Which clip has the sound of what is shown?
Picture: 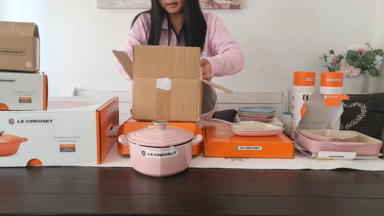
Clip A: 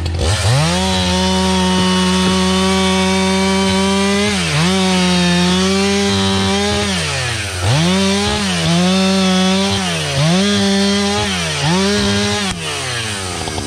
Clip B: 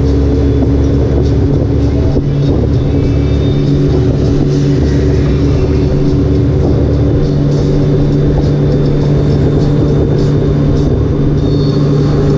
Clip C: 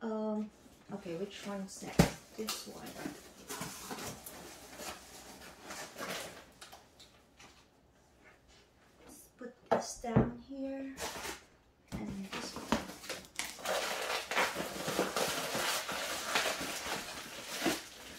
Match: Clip C